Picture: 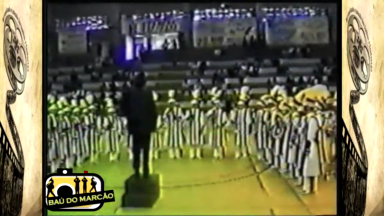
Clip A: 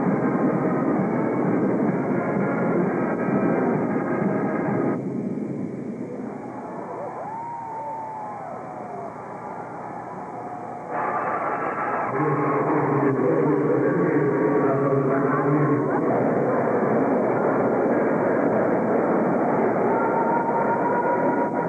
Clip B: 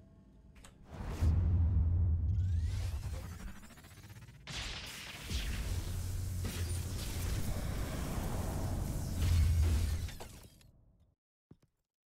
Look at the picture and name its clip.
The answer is A